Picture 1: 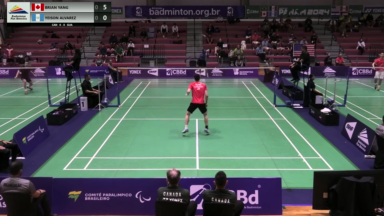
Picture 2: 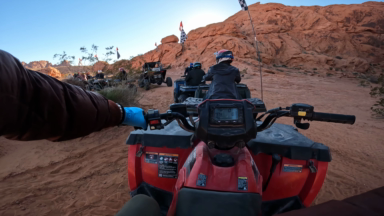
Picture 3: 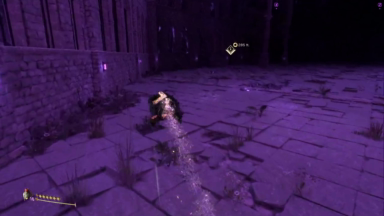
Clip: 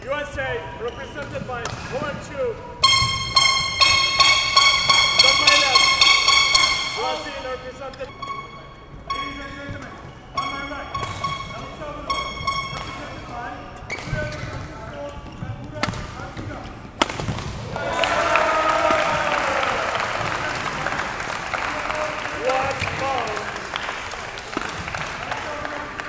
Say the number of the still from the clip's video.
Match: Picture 1